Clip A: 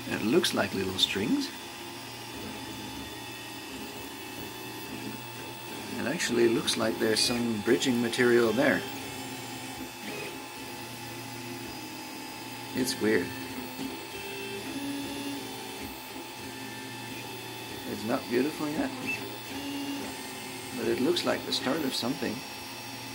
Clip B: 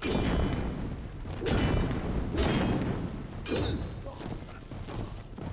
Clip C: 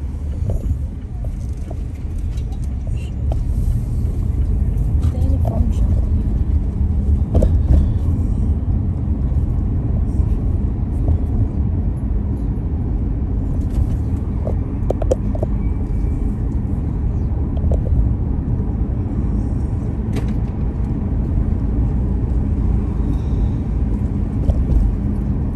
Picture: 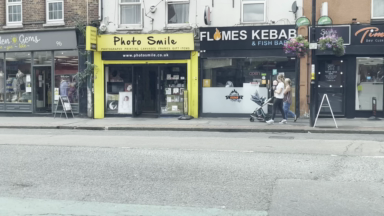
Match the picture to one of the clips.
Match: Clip C